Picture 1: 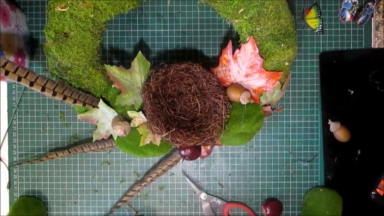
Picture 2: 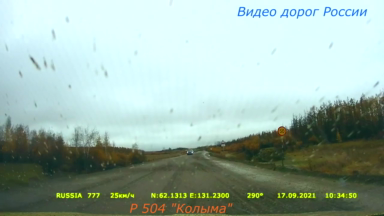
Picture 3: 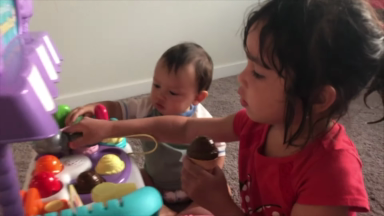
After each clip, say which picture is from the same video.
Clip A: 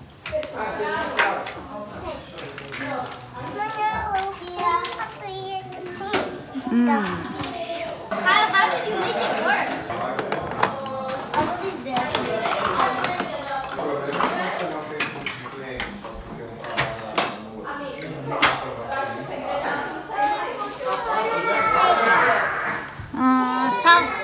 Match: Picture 3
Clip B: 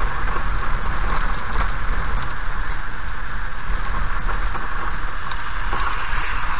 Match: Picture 2